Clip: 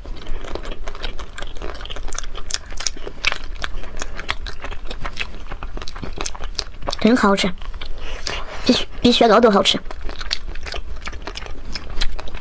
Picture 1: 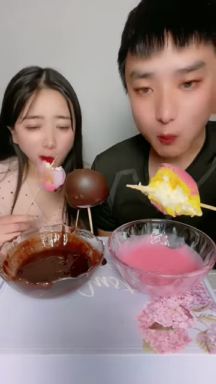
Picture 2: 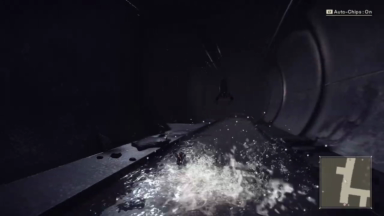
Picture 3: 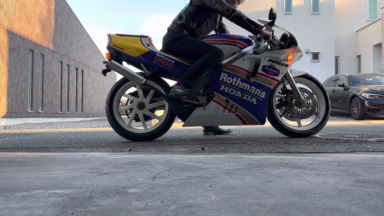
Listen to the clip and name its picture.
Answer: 1